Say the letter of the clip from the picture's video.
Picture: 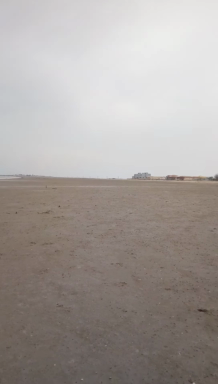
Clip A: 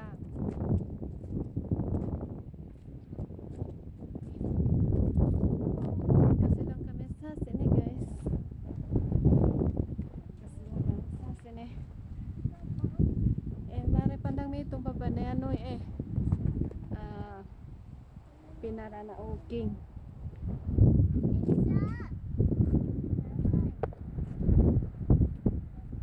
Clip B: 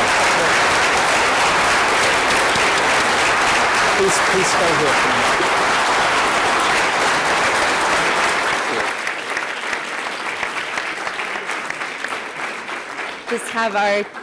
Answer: A